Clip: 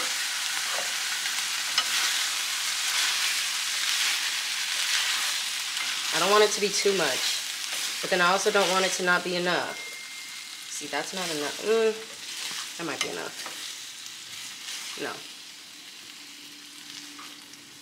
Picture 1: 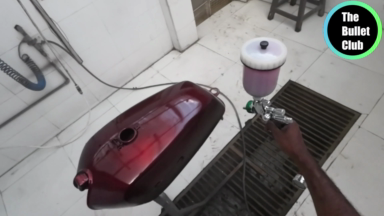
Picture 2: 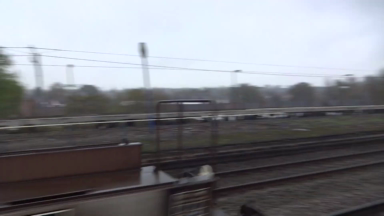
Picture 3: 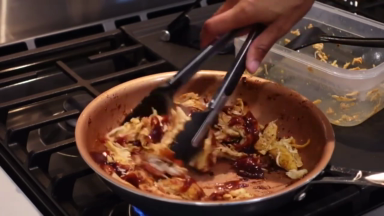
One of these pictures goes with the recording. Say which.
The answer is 3